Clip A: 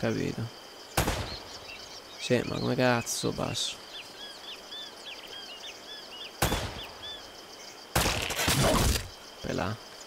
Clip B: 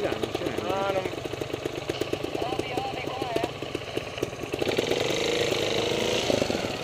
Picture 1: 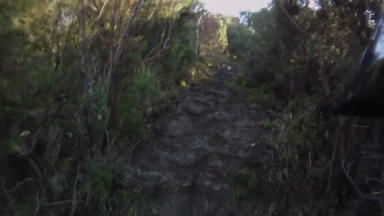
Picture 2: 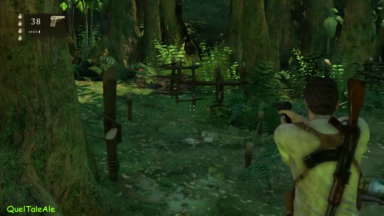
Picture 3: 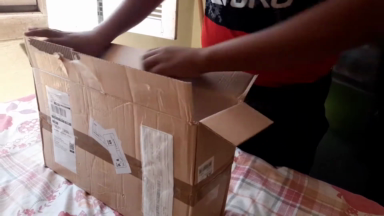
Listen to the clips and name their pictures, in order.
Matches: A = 2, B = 1